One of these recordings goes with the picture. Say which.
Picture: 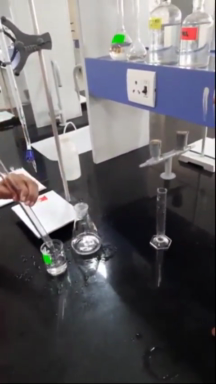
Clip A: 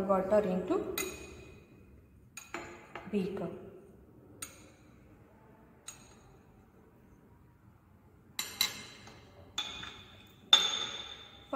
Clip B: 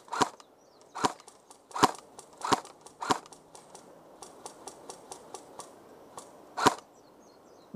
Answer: A